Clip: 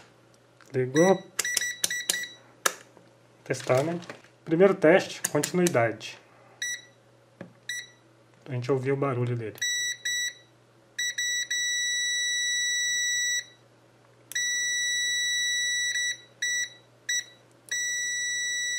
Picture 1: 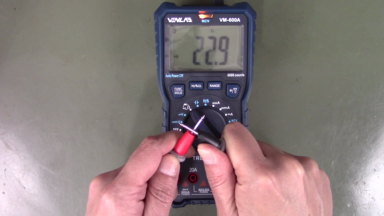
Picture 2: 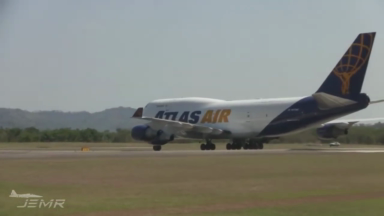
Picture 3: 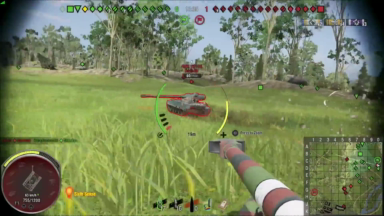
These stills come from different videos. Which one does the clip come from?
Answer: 1